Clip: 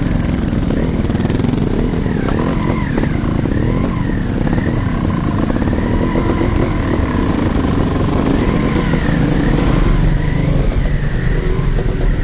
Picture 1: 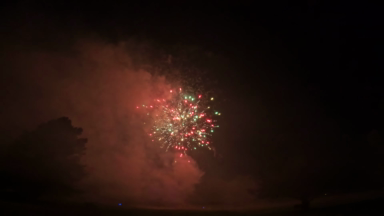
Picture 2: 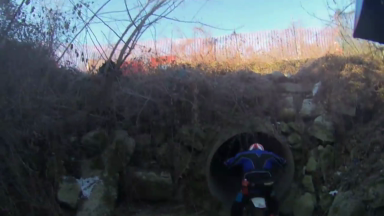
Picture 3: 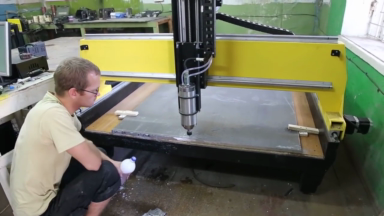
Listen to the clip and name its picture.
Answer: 2